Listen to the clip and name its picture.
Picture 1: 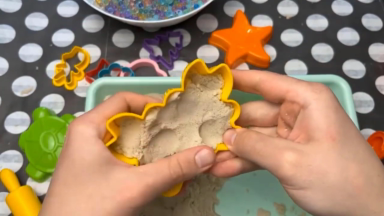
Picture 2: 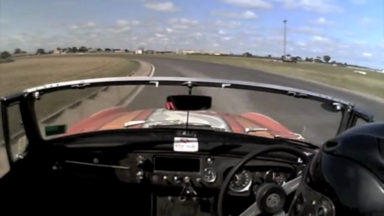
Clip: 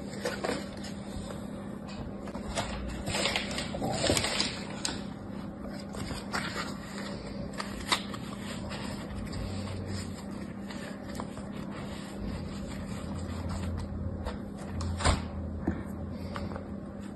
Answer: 1